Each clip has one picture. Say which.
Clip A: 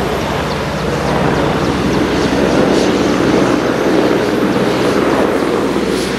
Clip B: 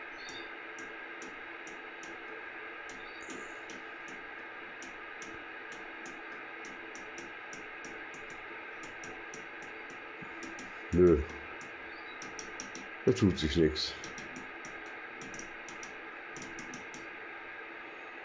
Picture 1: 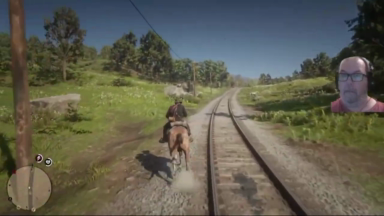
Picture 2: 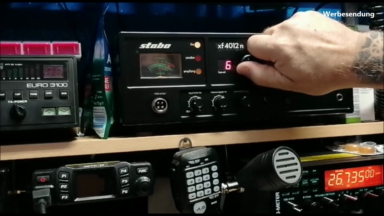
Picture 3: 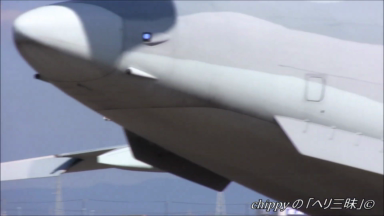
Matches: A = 3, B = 2